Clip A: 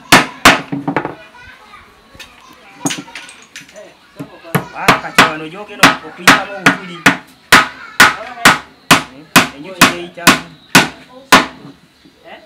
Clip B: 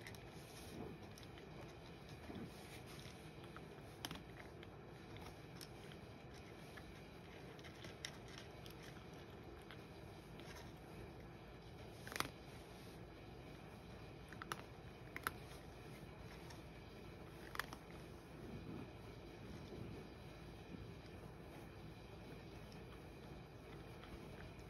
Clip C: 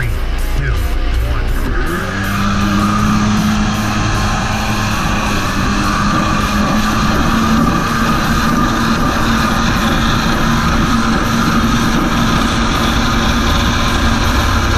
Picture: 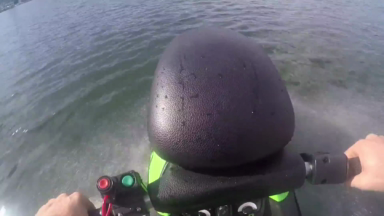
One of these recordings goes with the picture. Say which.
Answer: C